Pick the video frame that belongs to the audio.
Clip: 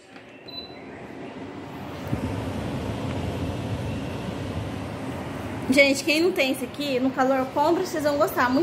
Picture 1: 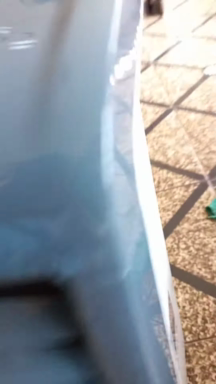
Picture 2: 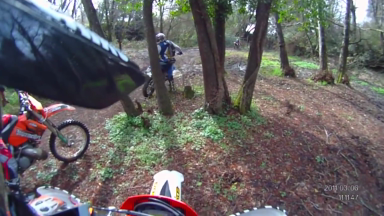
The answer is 1